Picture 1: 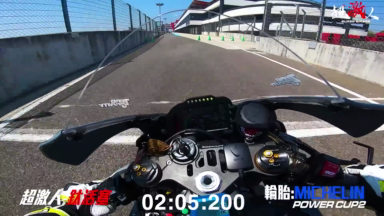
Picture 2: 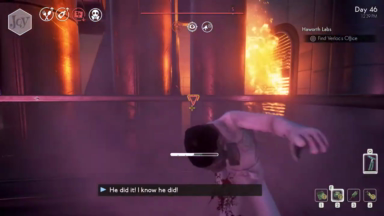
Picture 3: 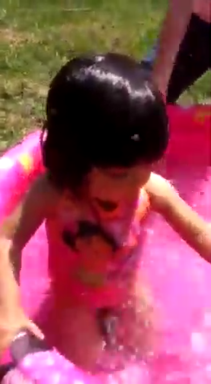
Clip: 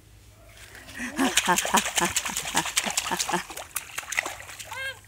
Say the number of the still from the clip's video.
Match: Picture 3